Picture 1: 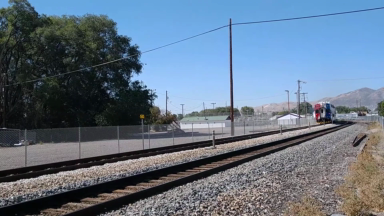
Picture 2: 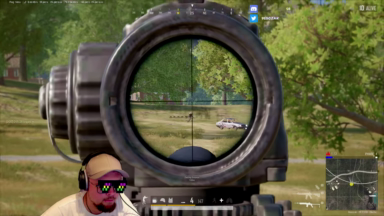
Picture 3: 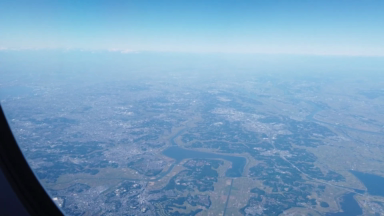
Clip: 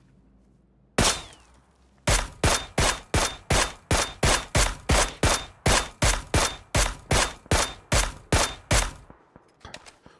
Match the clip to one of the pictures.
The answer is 2